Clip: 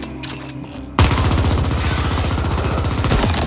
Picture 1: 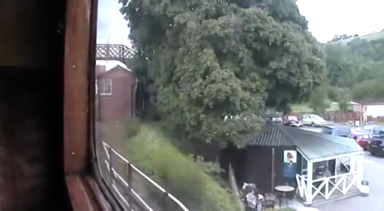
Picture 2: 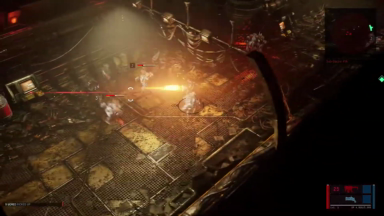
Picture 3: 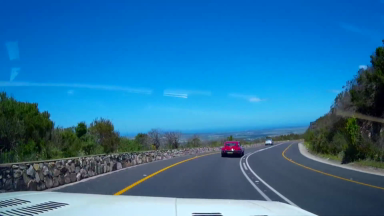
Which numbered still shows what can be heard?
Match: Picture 2